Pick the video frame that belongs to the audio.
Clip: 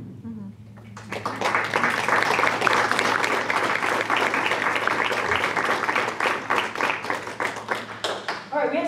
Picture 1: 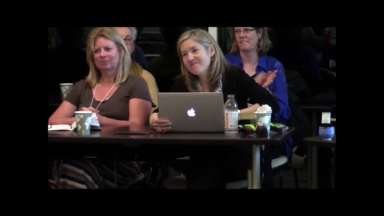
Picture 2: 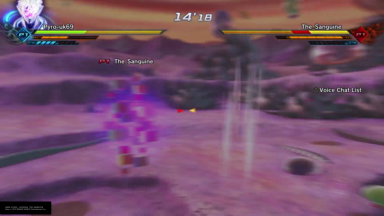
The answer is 1